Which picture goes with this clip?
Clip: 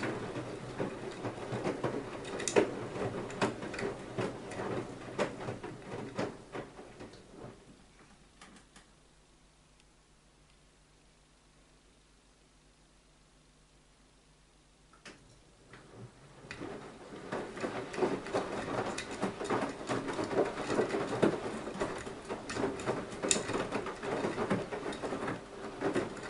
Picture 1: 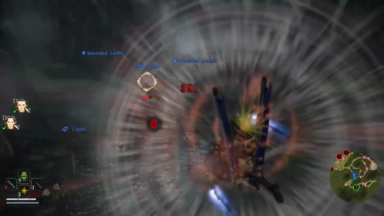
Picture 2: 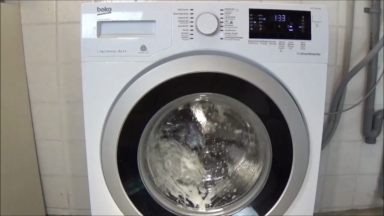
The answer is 2